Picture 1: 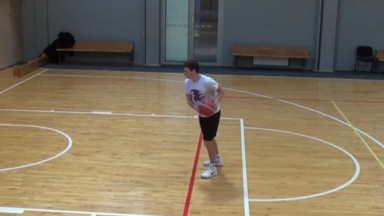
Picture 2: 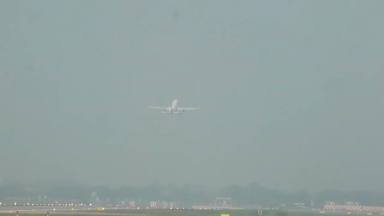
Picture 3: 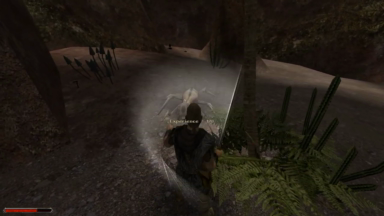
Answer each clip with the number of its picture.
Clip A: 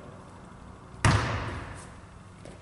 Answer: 1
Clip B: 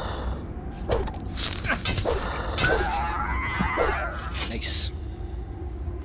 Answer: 3